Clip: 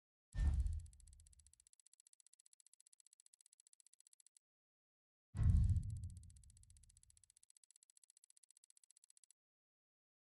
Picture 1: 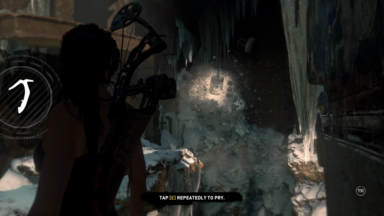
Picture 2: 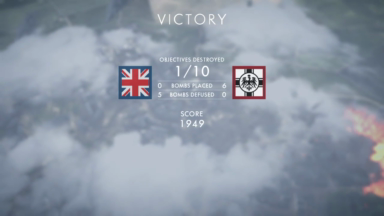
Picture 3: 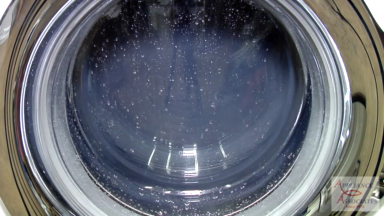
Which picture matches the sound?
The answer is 2